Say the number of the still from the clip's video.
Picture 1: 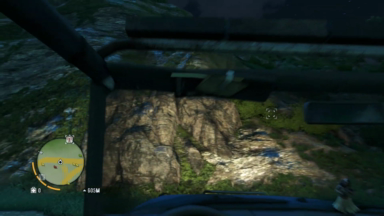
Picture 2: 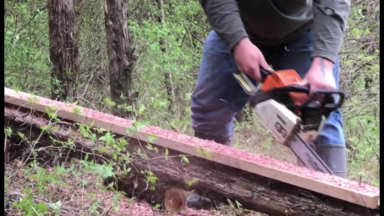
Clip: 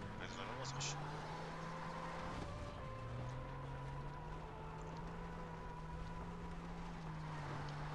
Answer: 1